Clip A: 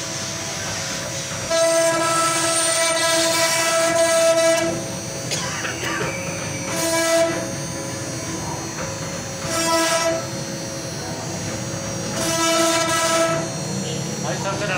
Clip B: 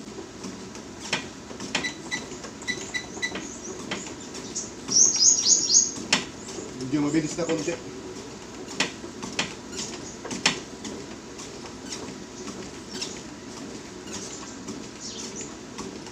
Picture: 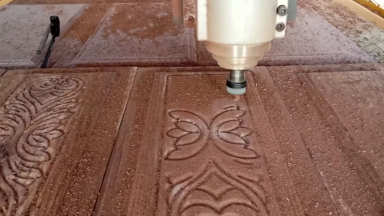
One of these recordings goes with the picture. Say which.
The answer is A